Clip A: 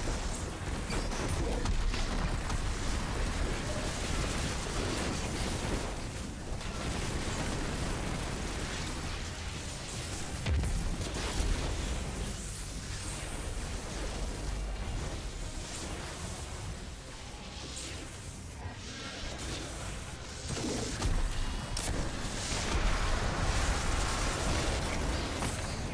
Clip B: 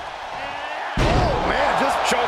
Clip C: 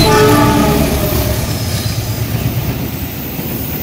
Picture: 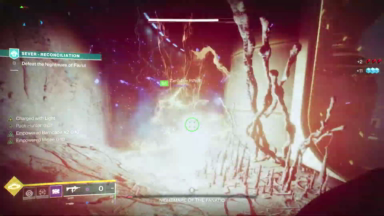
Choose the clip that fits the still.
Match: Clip A